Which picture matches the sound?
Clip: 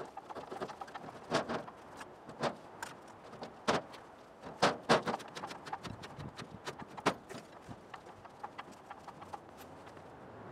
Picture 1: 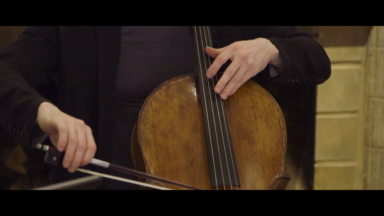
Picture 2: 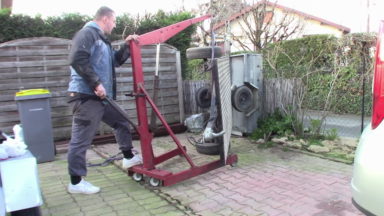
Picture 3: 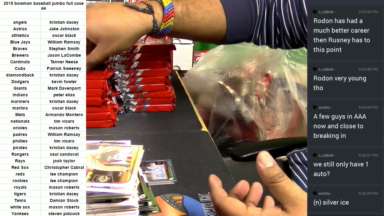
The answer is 2